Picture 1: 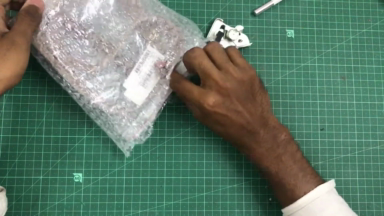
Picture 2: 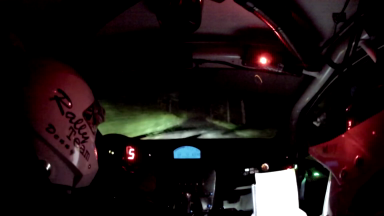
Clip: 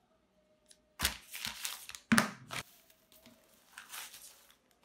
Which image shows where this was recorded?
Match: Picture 1